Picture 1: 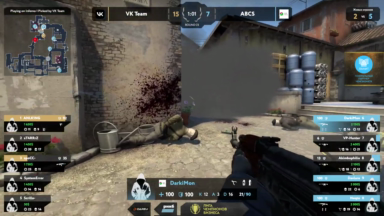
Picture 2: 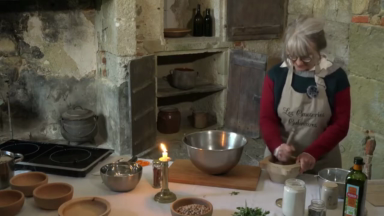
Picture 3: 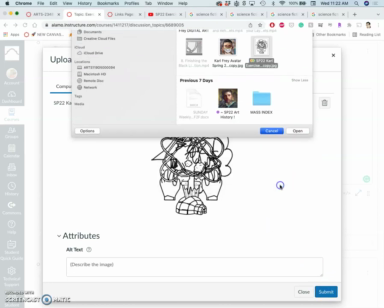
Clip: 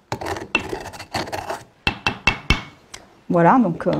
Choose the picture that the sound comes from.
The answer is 2